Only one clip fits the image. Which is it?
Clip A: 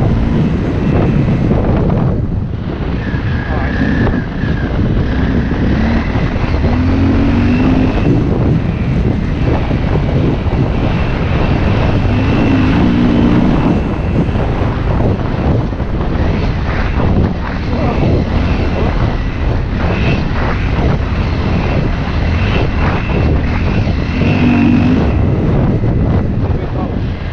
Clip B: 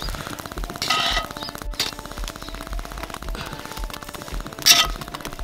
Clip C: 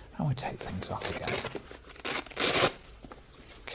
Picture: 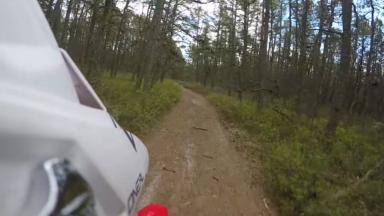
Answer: A